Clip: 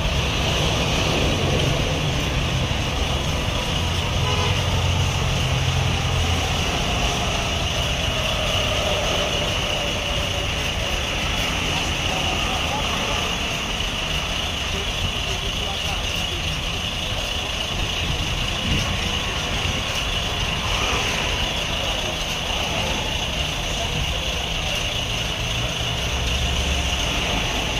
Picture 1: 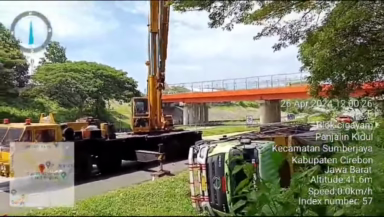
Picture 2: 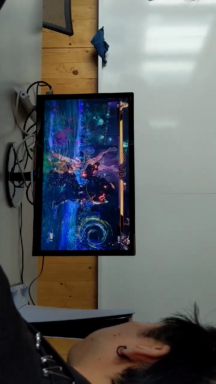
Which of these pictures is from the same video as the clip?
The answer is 1